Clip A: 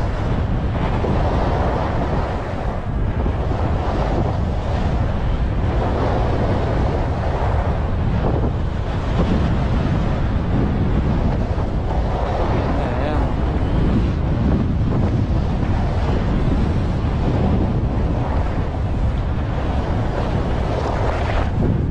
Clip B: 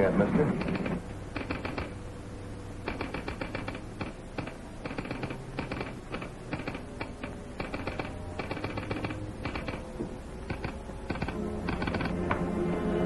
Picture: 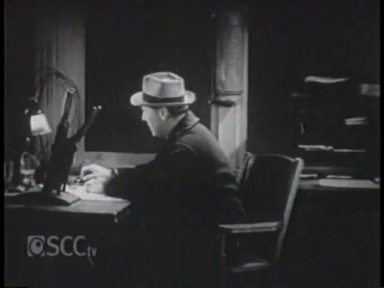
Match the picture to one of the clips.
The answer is B